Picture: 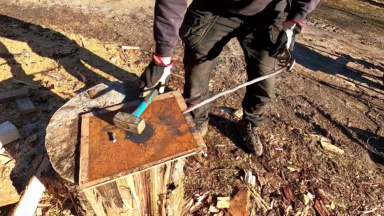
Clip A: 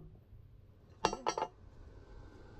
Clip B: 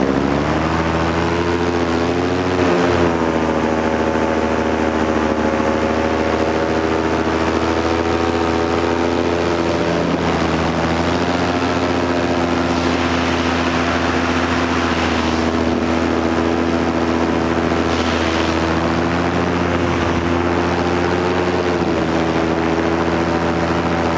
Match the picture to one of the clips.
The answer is A